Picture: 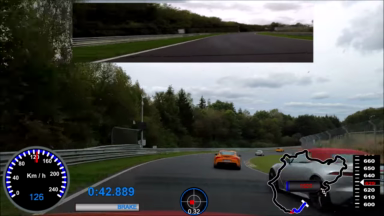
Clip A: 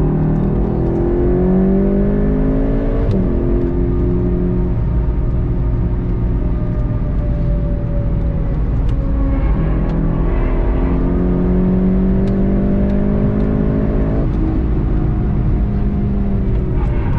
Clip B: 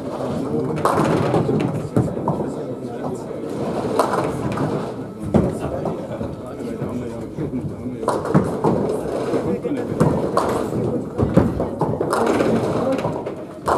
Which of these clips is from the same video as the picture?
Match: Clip A